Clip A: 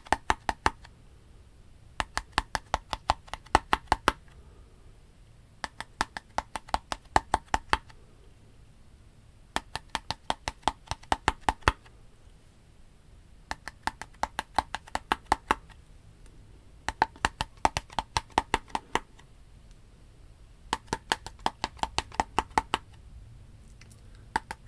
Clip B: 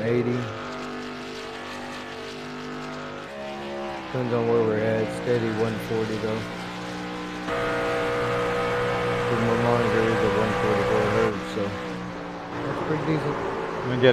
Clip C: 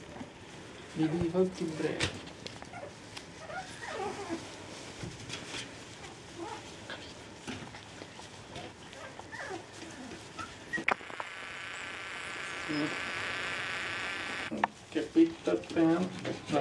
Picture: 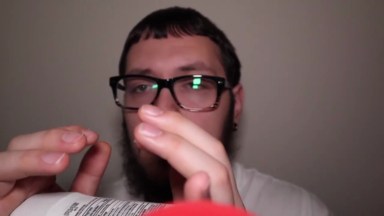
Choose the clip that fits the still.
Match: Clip A